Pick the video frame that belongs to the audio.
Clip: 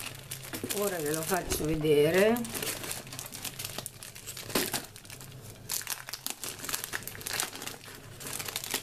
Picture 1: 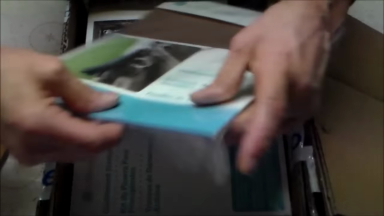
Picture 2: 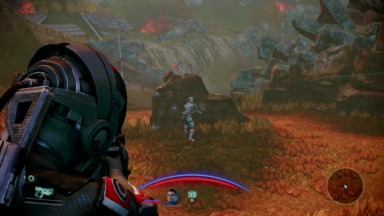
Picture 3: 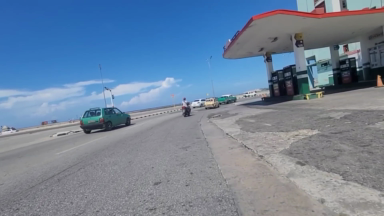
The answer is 1